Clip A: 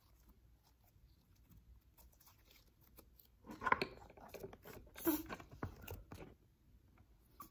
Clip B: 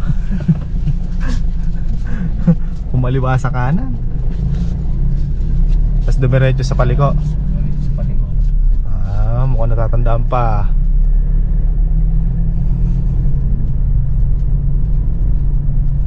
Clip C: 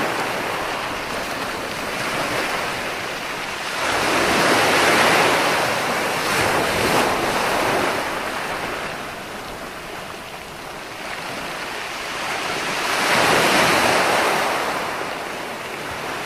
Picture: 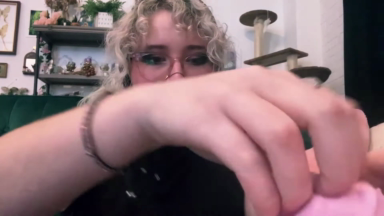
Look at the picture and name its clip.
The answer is A